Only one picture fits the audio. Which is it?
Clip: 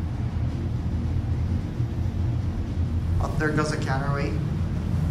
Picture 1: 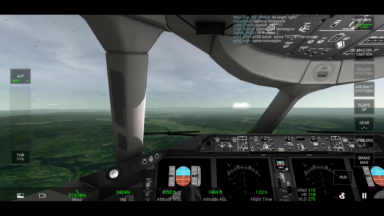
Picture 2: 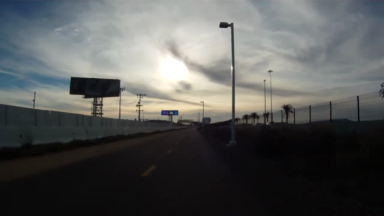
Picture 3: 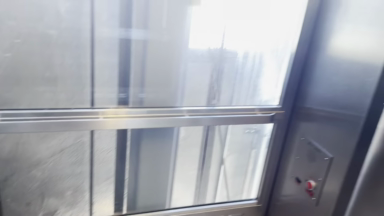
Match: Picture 3